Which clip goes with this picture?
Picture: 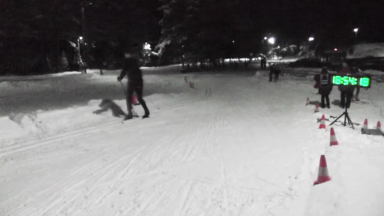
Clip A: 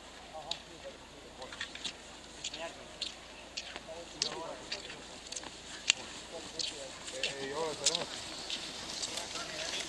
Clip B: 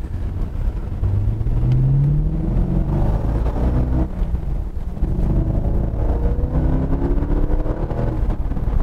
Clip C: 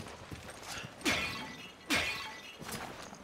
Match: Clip A